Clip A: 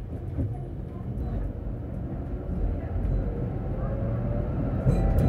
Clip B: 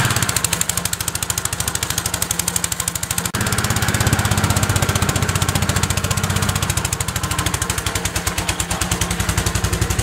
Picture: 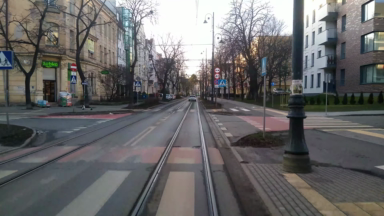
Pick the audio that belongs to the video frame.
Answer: A